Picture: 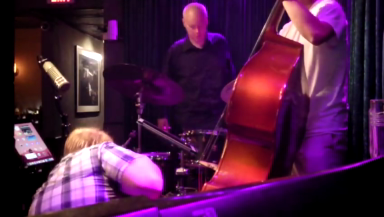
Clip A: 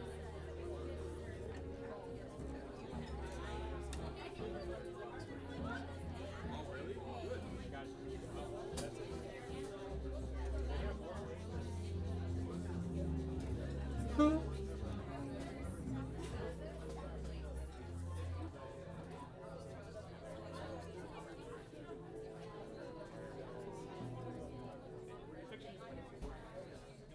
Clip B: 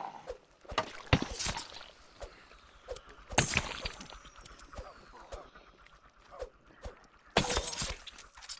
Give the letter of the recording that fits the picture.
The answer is A